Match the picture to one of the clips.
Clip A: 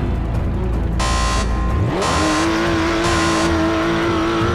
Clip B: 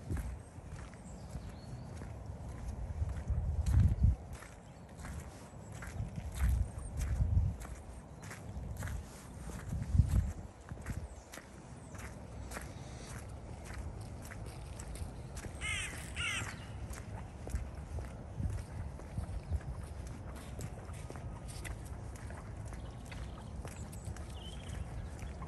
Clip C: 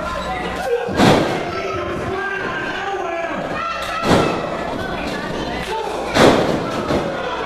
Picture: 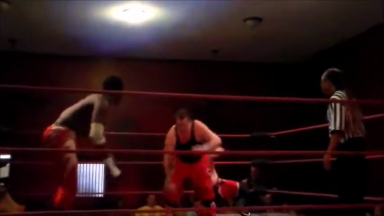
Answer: C